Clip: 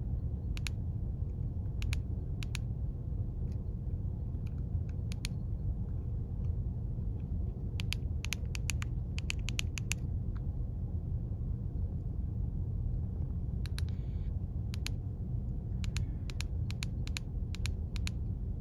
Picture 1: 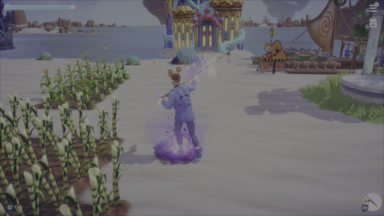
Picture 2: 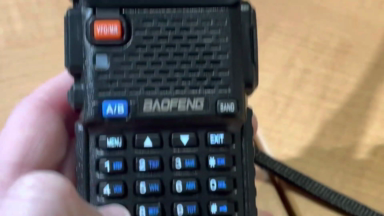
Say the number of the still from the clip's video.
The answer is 2